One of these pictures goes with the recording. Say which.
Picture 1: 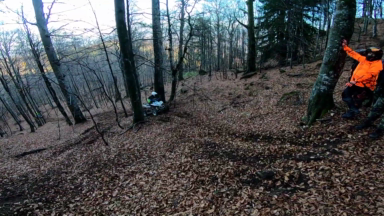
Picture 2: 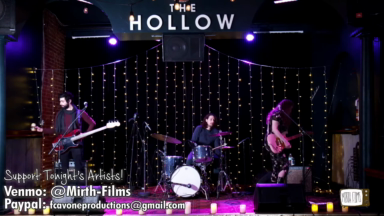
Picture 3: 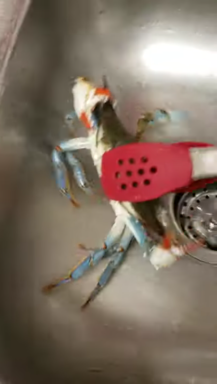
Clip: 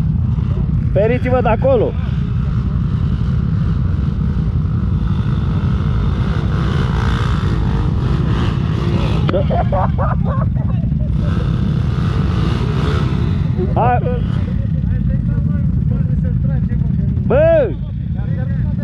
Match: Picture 1